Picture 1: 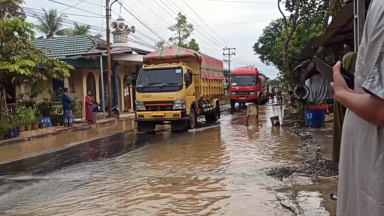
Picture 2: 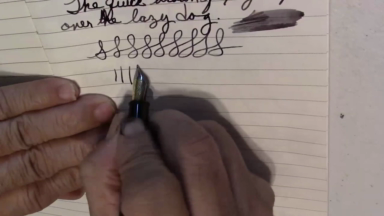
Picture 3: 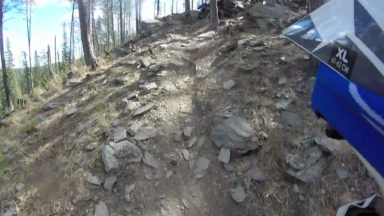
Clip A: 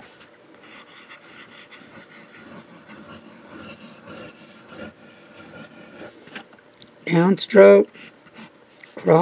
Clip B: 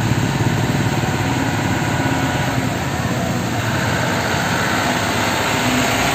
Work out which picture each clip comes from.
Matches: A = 2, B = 1